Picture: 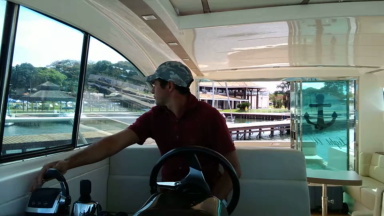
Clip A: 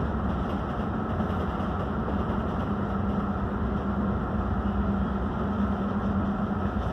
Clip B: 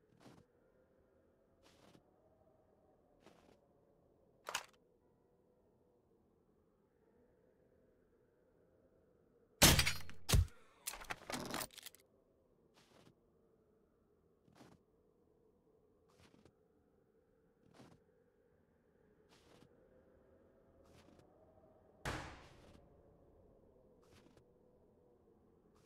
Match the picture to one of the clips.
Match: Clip A